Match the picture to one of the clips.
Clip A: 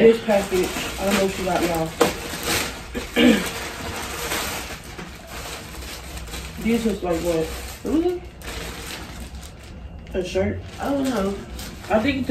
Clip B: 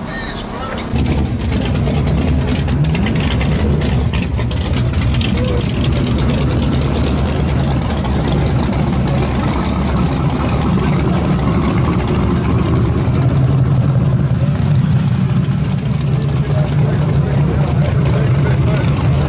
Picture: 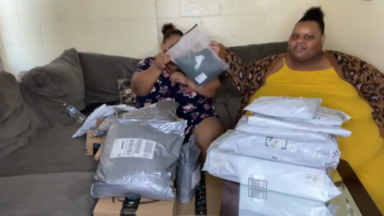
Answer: A